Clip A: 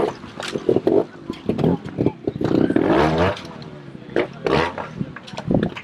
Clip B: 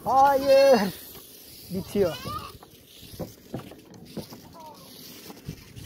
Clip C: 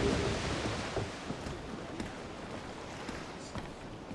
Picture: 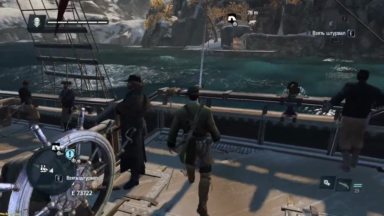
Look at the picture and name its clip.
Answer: C